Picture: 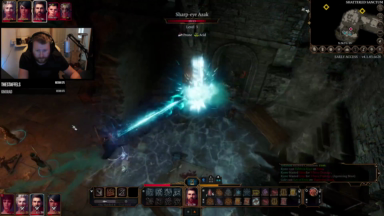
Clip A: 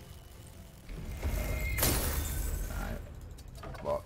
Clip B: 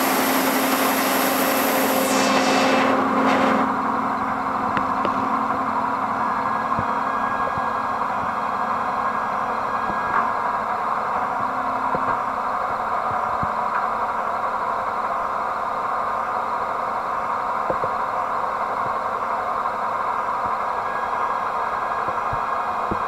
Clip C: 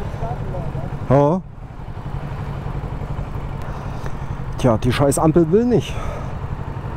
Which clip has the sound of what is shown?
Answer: A